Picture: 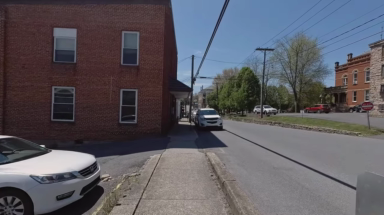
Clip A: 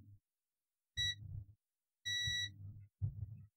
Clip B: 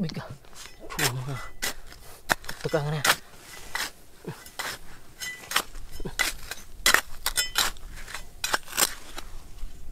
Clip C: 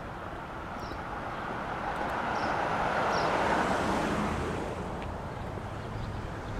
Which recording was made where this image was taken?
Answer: C